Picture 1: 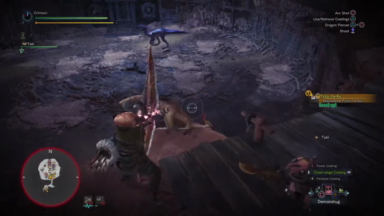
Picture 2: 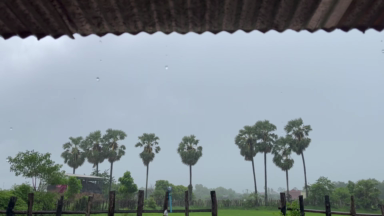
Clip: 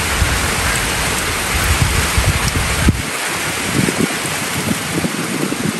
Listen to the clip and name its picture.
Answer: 2